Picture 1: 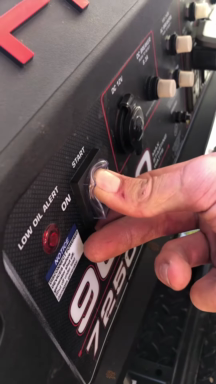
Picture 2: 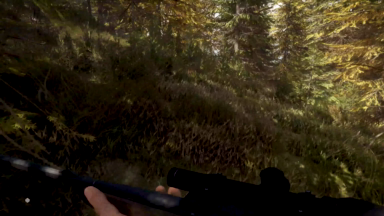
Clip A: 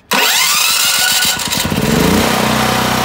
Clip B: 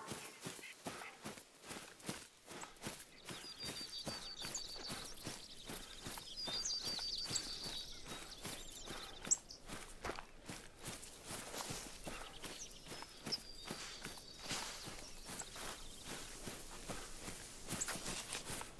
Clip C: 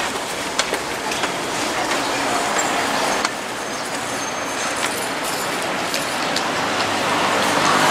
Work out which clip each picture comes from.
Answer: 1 A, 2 B